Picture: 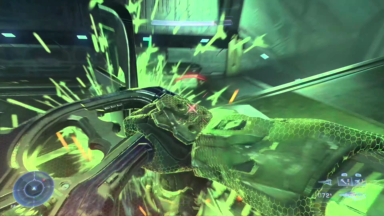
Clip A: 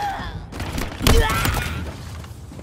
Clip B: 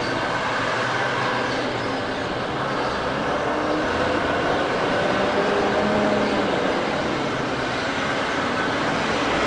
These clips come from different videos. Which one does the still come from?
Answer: A